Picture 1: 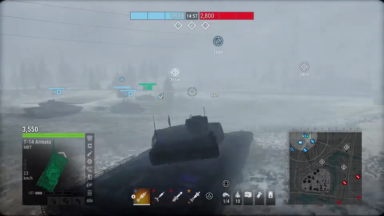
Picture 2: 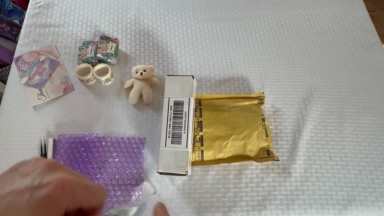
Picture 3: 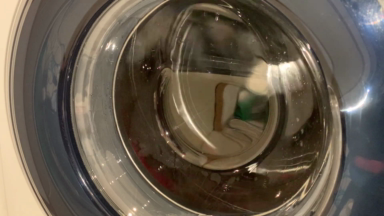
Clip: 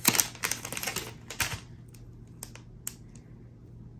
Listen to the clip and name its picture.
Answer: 2